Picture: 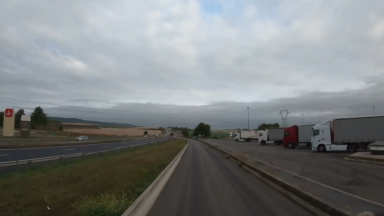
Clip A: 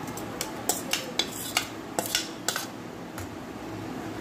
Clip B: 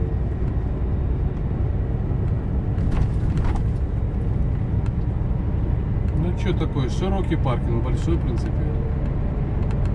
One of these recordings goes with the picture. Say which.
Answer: B